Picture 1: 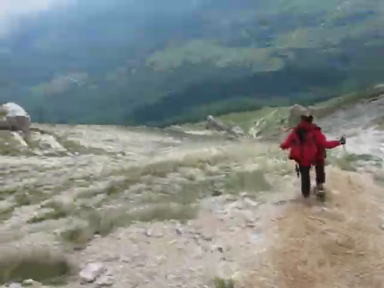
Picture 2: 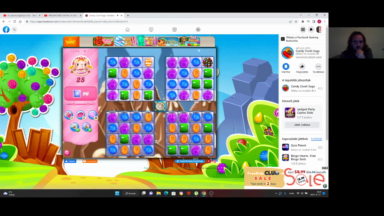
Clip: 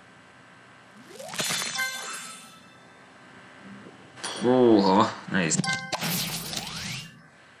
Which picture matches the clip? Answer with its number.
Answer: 2